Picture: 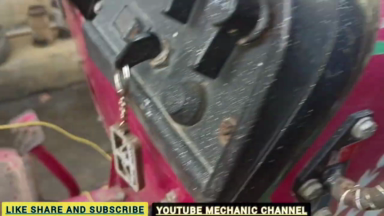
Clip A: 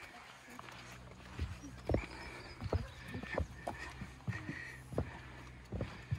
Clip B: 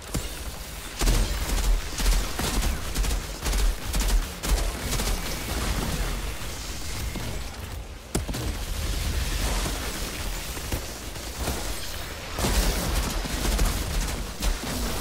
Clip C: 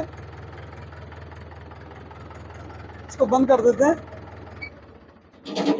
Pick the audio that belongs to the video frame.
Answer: C